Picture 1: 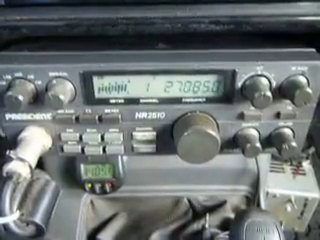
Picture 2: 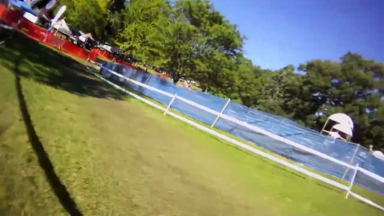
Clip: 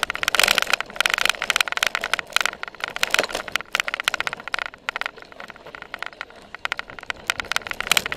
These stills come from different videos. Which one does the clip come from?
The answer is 2